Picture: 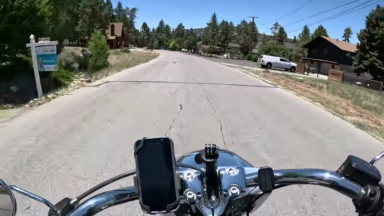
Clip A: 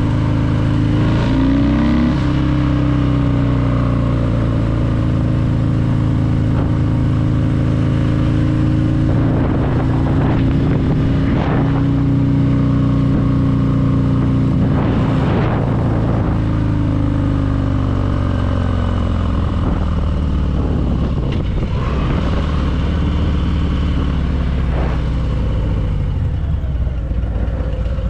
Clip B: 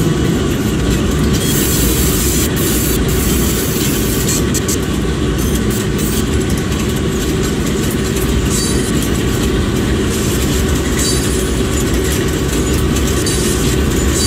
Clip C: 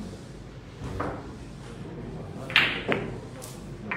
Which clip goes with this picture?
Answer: A